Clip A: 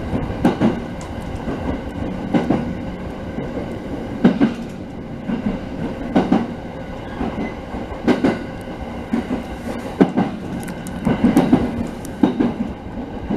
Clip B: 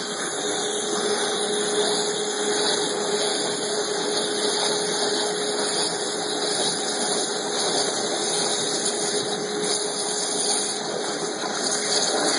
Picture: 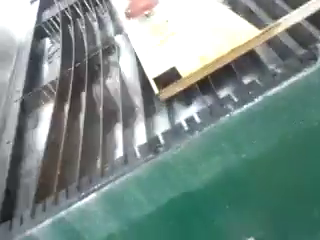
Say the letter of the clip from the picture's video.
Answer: B